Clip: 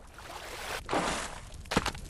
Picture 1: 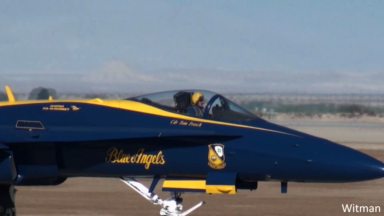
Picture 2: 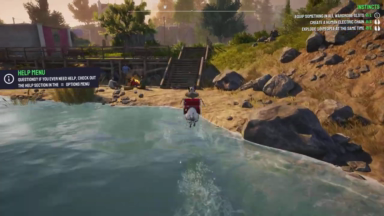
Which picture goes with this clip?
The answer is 2